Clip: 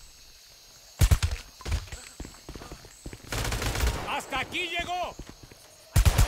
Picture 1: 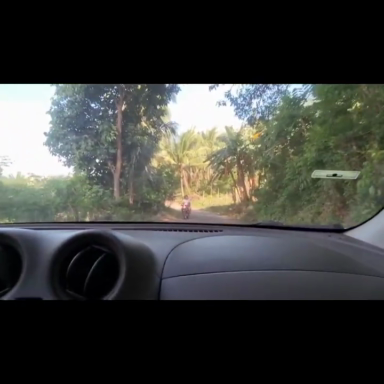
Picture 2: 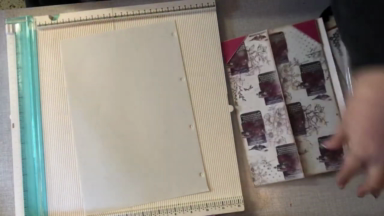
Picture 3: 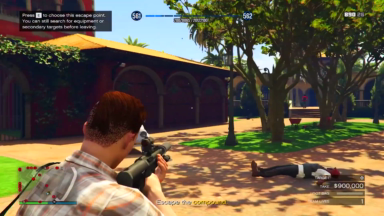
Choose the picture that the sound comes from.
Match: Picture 3